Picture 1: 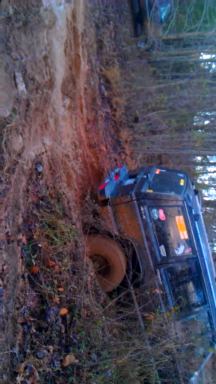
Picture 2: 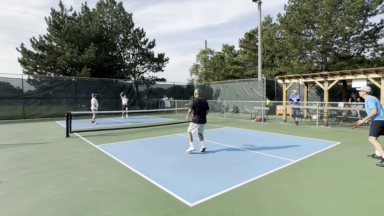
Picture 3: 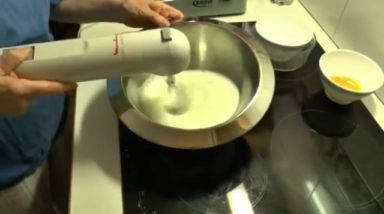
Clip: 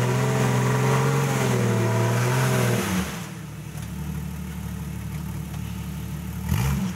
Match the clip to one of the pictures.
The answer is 1